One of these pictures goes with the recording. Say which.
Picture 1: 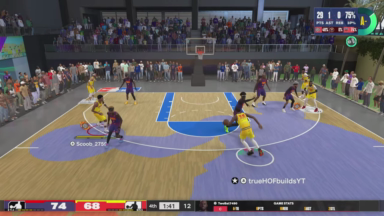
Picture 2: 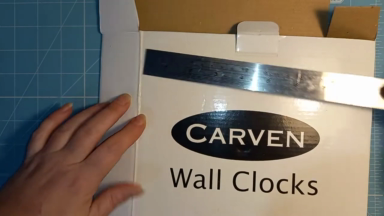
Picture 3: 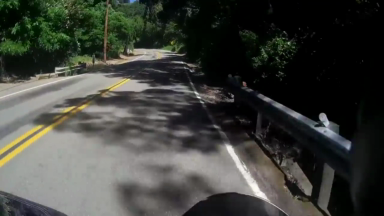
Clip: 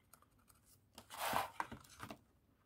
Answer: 2